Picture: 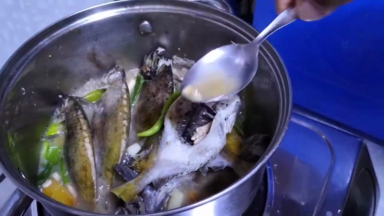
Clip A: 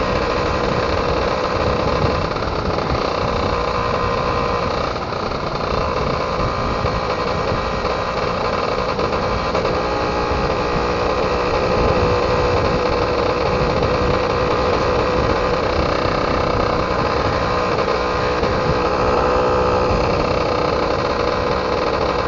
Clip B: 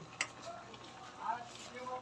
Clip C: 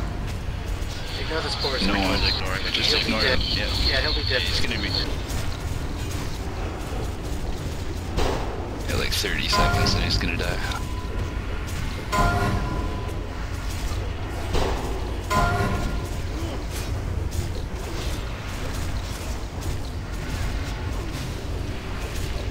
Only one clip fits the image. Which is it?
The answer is B